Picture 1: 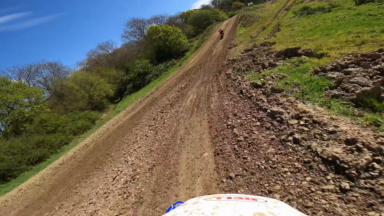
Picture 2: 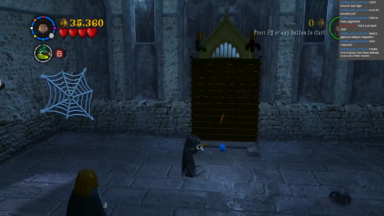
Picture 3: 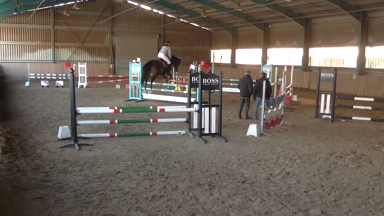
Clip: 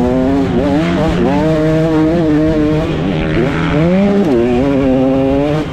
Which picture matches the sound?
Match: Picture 1